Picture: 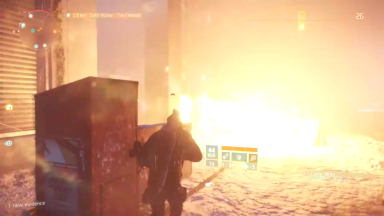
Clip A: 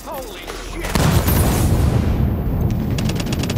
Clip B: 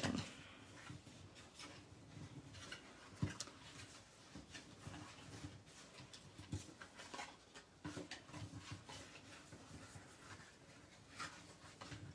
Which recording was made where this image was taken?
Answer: A